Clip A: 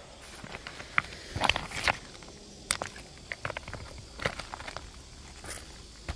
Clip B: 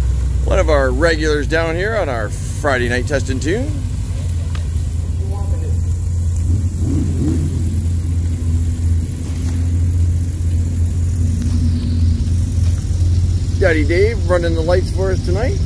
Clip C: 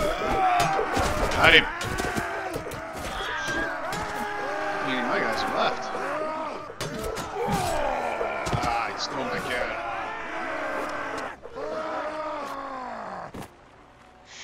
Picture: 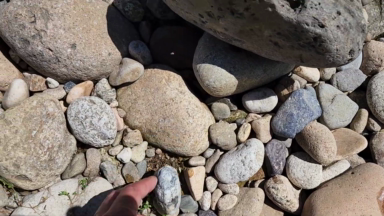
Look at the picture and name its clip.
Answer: A